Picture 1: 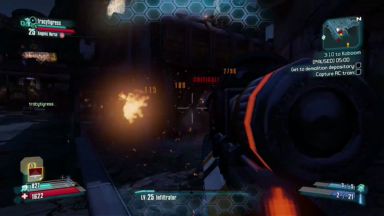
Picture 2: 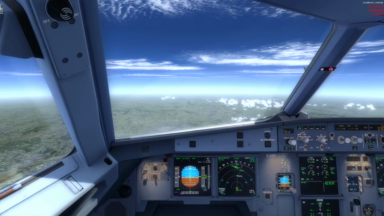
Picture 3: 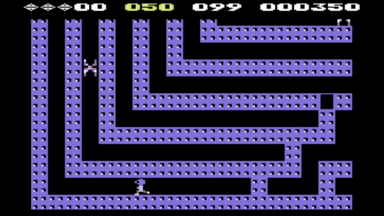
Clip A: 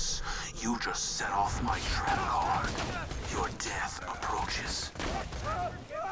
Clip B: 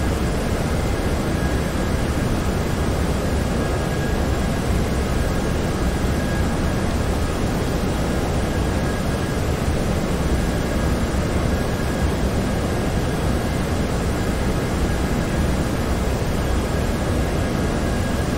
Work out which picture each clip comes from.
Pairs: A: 1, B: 2